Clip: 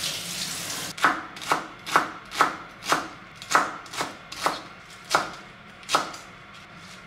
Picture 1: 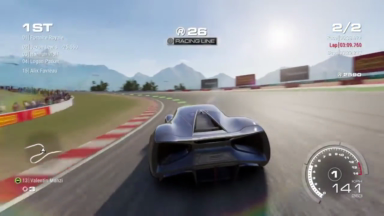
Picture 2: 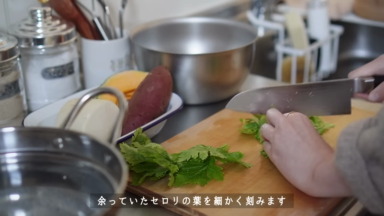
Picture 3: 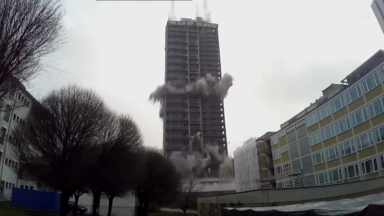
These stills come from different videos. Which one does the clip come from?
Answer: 2